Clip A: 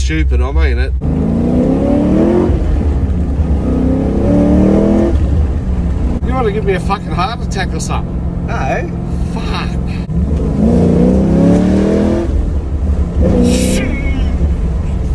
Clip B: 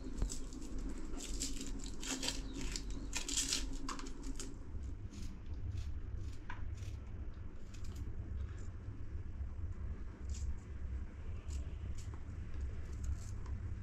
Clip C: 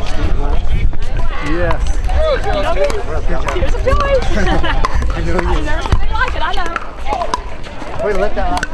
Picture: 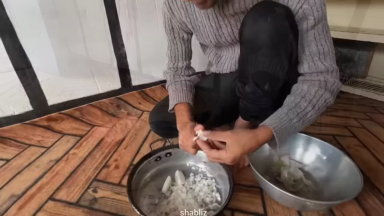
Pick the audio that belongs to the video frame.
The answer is B